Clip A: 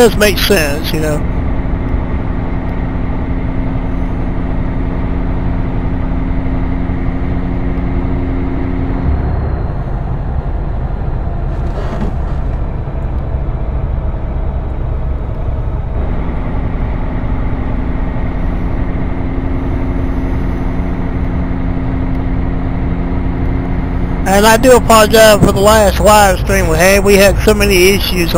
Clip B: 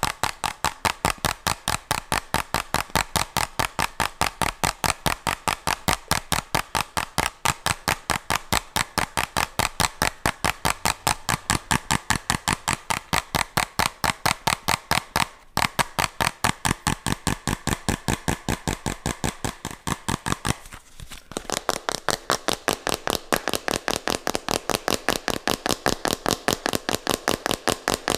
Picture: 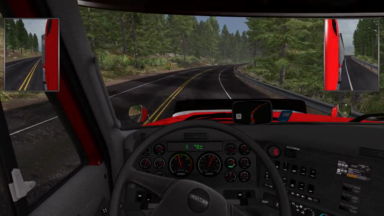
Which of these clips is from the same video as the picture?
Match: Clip A